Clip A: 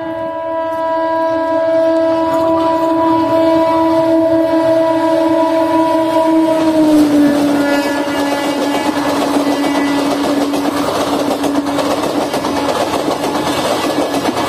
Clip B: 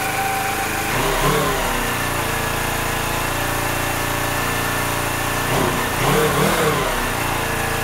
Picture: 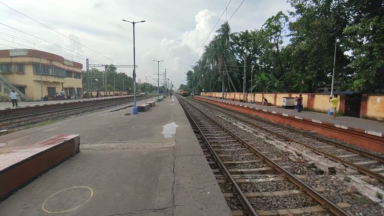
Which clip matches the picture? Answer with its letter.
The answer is A